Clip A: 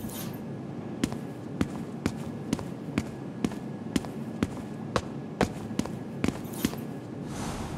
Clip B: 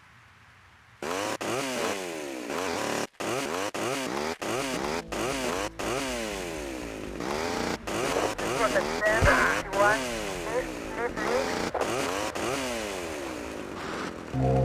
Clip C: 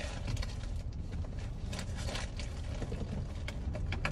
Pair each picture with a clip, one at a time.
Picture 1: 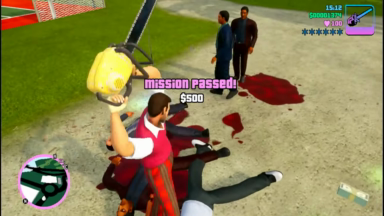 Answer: B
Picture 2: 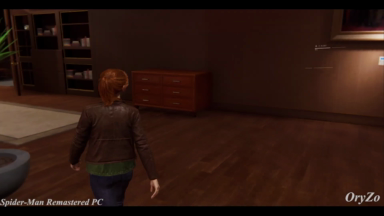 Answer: A